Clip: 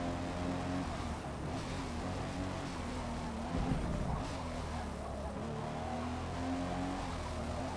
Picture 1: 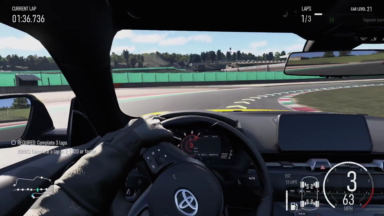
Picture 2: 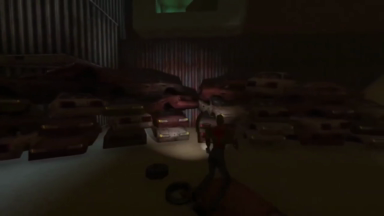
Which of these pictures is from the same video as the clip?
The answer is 1